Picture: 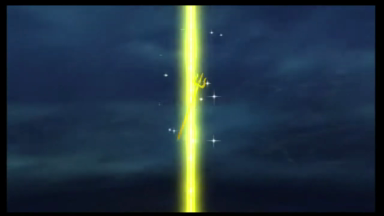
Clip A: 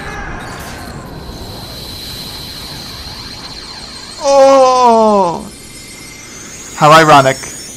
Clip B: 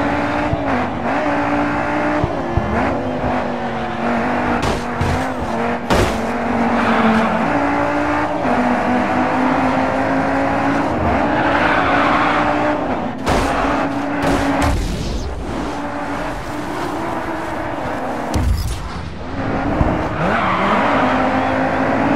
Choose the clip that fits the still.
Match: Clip A